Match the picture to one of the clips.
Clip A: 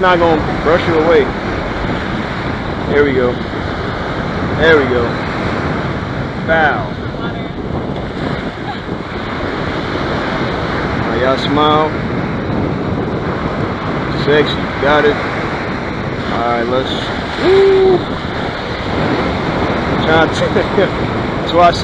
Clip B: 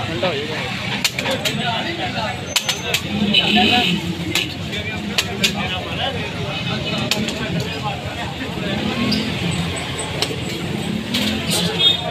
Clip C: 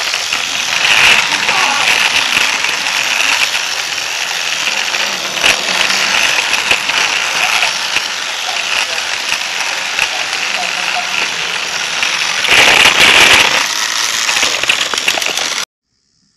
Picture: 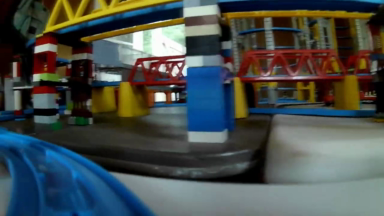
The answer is C